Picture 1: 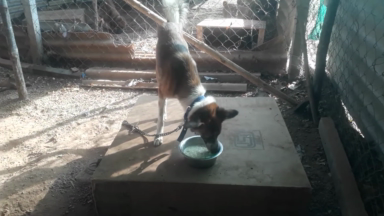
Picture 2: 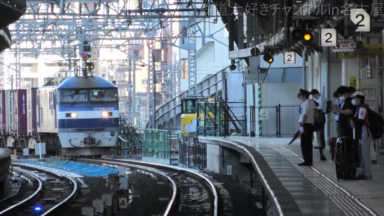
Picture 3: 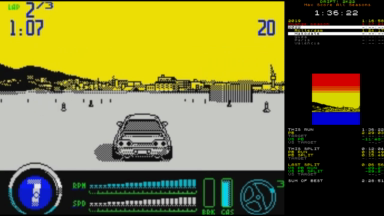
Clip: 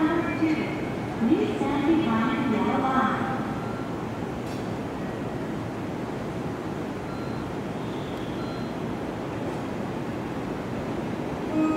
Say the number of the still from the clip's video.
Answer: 2